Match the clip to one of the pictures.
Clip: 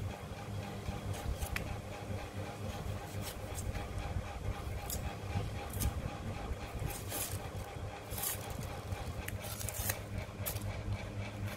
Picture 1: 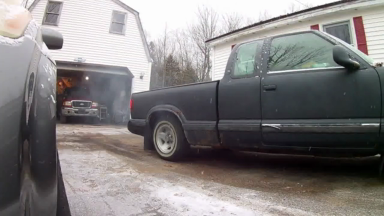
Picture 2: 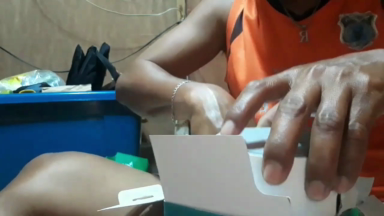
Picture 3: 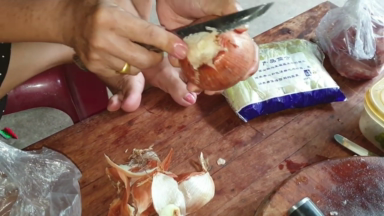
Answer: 3